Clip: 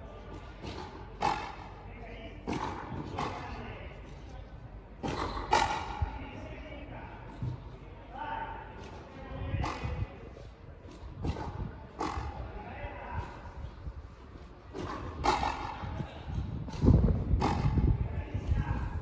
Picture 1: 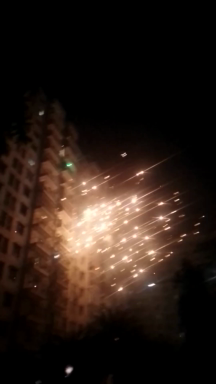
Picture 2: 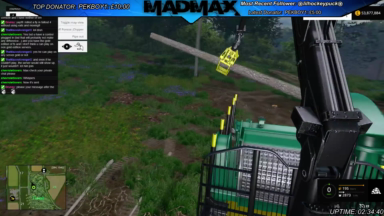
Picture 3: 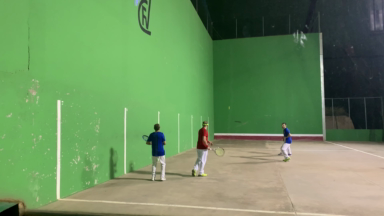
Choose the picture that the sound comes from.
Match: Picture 3